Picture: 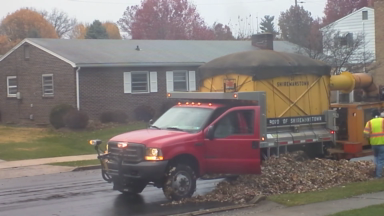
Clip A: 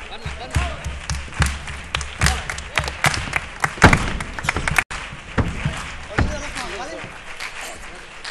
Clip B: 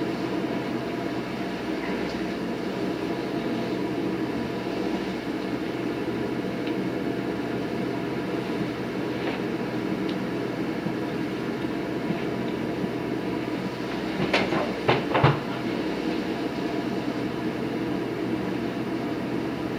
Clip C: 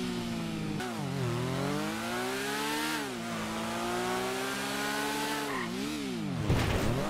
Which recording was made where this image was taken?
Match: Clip B